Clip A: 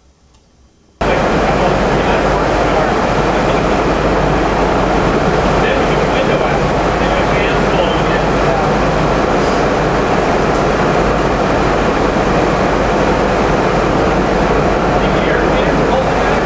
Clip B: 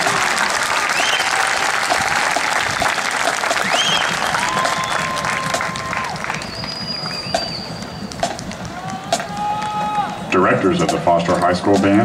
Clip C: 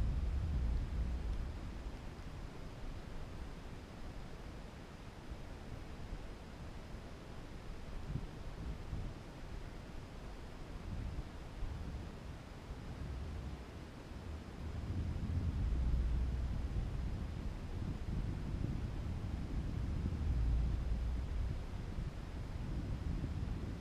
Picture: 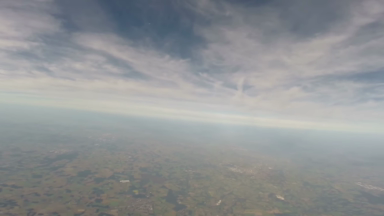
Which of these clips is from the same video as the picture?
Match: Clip C